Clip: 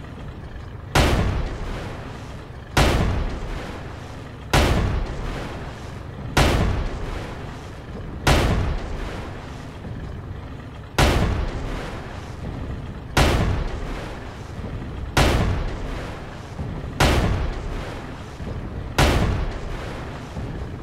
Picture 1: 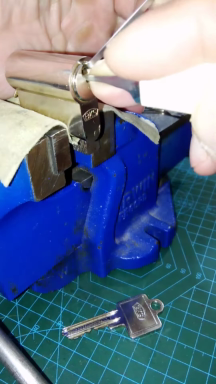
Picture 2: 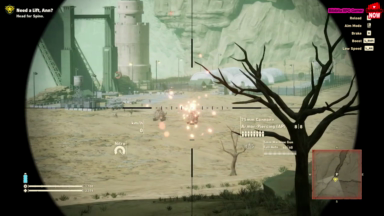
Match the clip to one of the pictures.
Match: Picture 2